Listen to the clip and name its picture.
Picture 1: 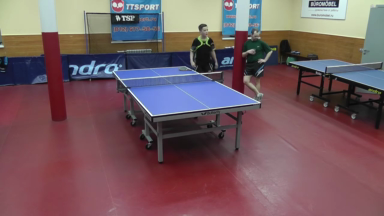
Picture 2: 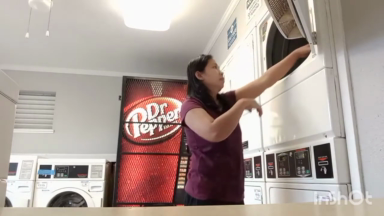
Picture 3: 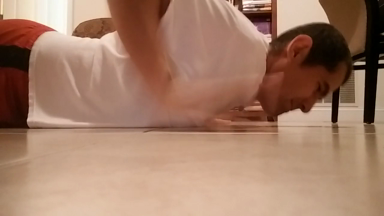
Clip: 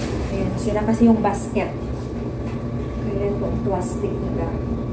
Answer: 2